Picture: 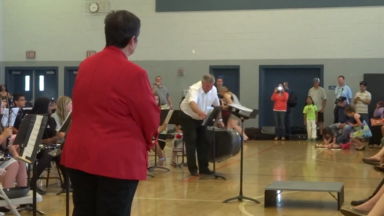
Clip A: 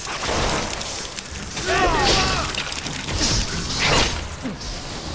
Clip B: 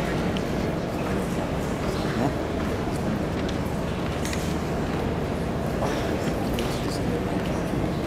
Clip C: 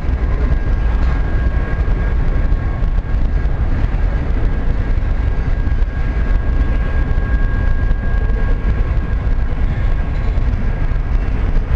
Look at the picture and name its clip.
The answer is B